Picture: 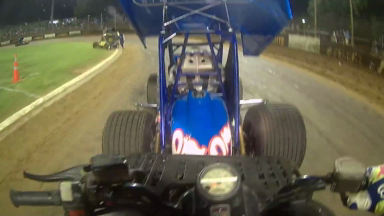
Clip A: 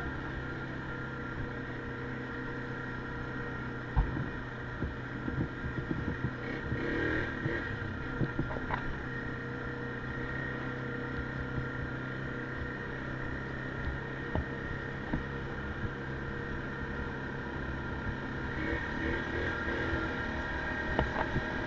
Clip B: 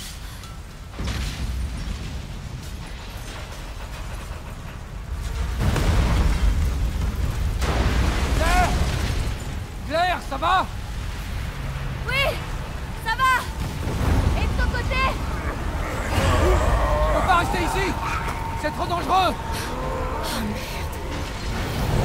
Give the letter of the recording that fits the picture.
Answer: A